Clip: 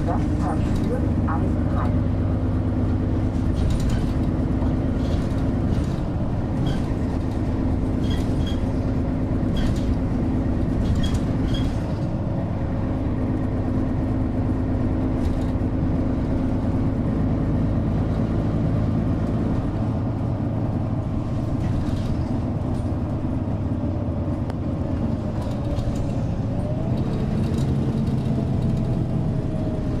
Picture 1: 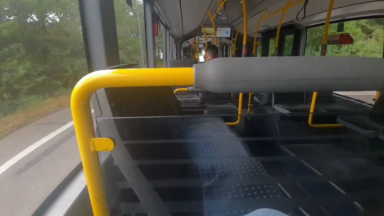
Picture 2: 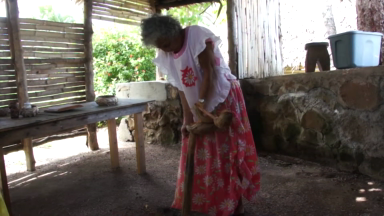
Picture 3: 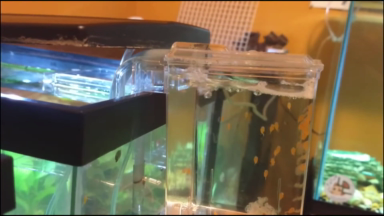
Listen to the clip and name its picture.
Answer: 1